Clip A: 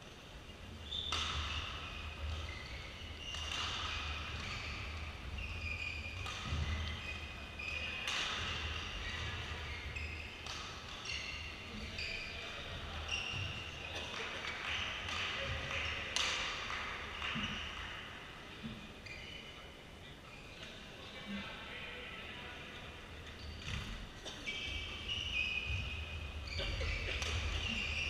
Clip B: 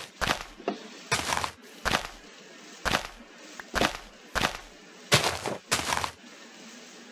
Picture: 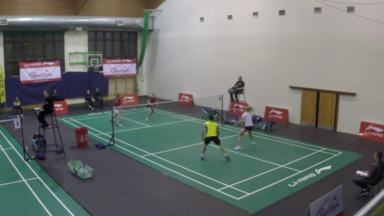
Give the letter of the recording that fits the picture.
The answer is A